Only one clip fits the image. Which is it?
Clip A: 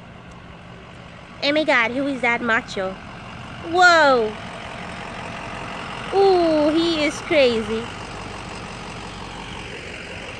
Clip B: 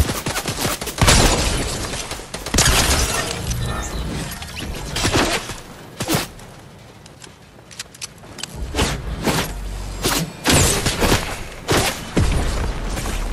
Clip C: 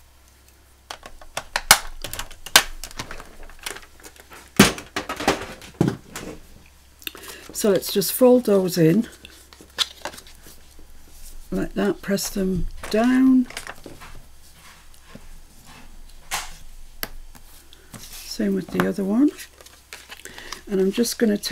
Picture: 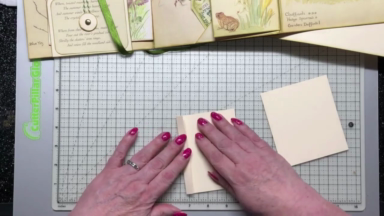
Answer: C